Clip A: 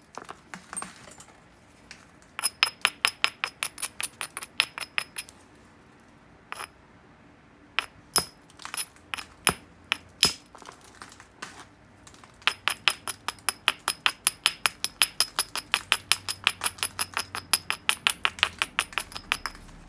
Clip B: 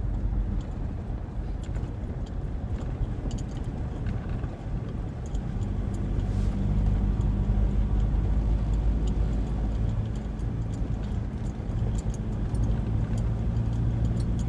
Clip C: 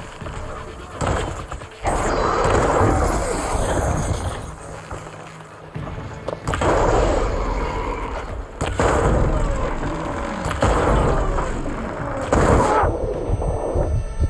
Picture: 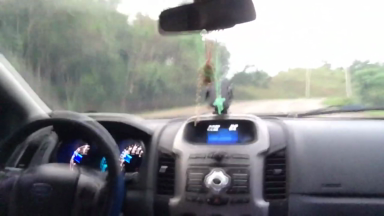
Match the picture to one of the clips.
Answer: B